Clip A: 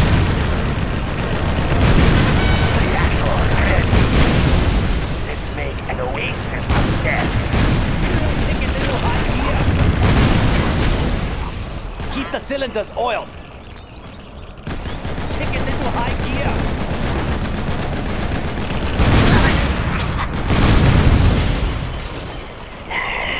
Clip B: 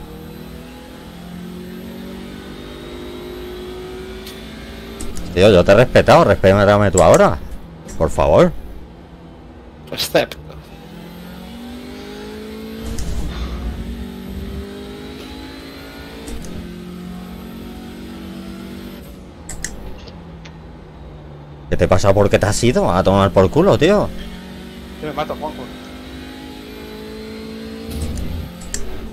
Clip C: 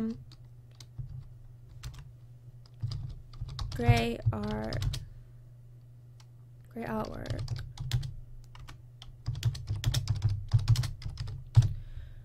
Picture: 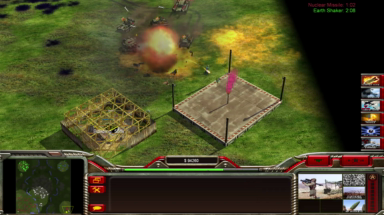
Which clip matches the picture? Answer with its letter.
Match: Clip A